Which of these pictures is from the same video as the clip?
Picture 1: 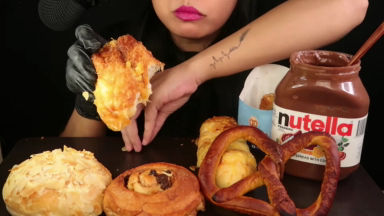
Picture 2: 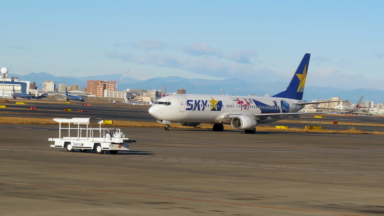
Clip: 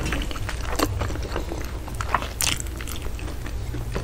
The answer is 1